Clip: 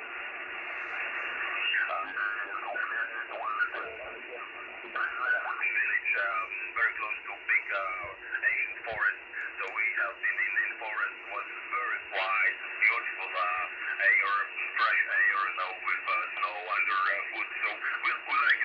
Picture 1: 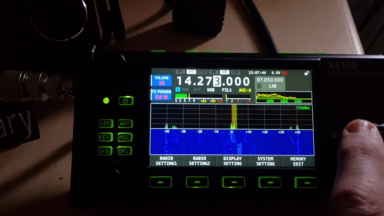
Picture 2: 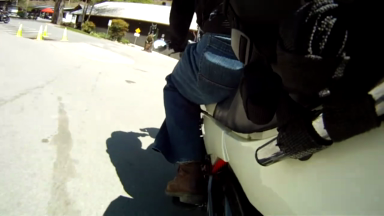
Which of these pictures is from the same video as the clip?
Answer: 1